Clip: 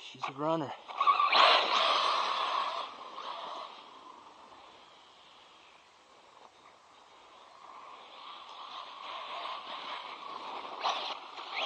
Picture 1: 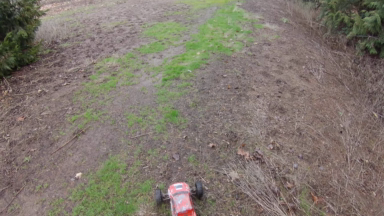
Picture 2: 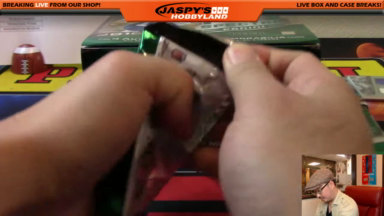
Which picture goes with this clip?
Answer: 1